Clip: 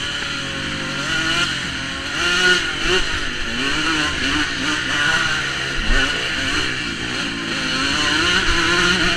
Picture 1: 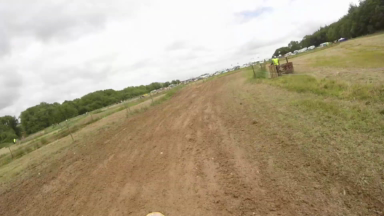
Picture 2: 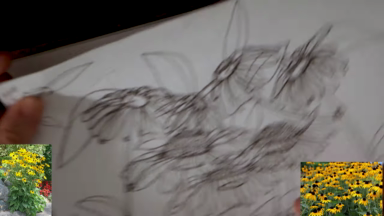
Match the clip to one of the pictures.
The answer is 1